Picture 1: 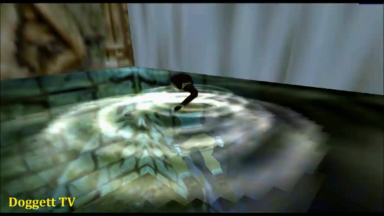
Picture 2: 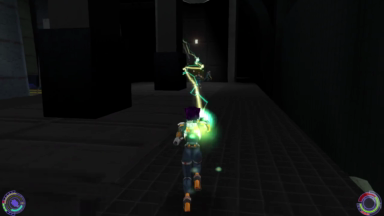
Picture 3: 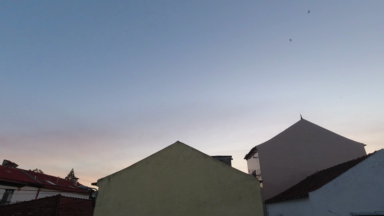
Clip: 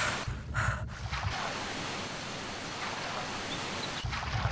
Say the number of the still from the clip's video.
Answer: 1